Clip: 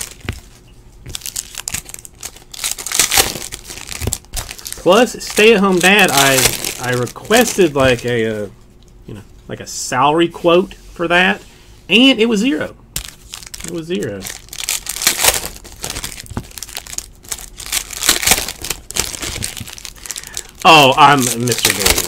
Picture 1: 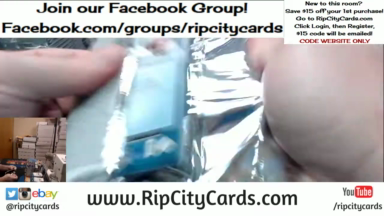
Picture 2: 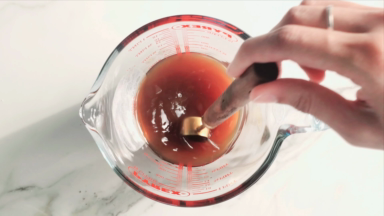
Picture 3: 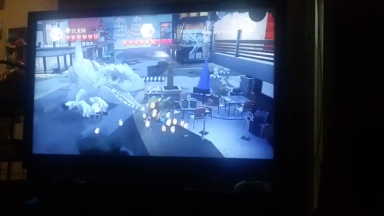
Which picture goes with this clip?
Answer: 1